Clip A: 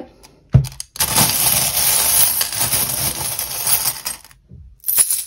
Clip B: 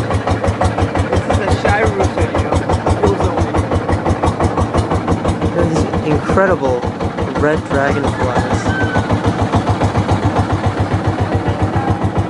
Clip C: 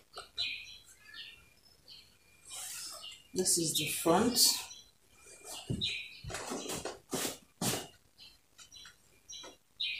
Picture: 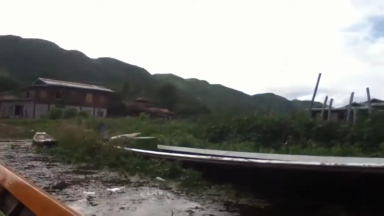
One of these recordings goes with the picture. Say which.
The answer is B